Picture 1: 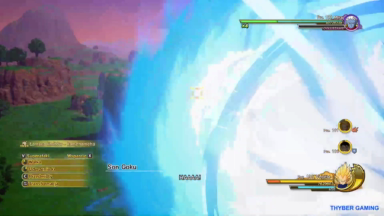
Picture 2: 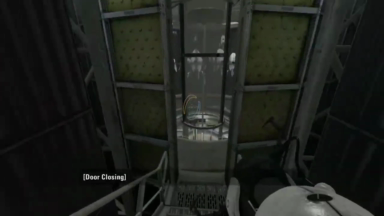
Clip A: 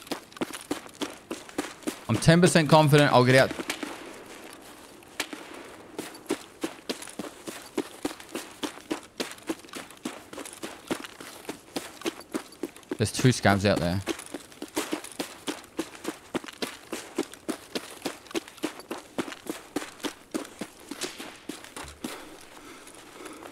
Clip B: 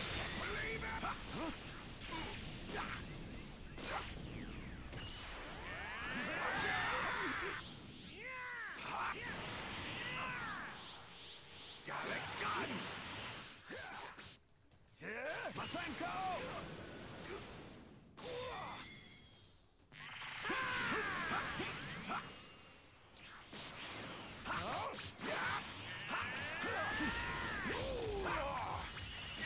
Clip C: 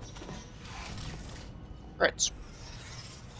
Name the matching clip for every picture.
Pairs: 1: B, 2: C